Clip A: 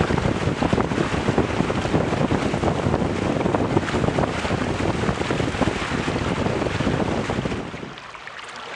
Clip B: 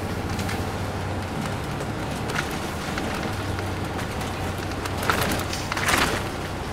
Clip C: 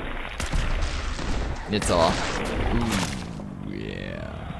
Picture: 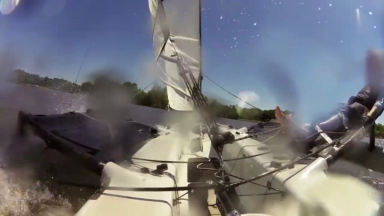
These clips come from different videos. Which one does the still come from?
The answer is A